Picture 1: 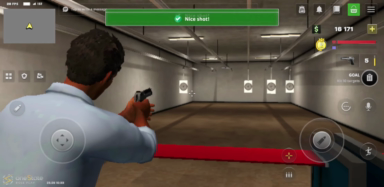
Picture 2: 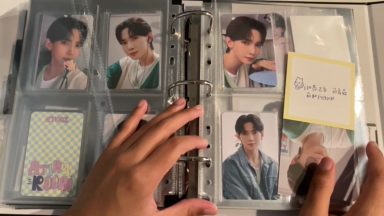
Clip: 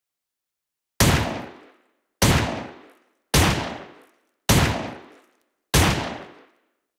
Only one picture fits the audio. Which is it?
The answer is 1